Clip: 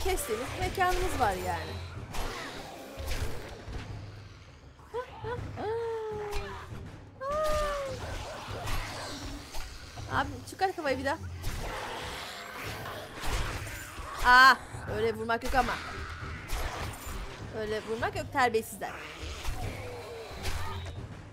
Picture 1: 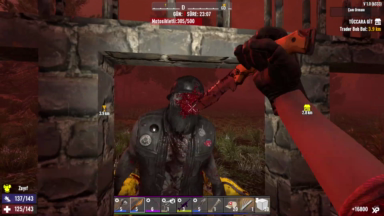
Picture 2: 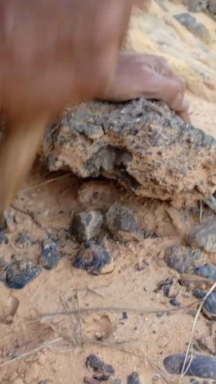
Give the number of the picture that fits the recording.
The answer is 1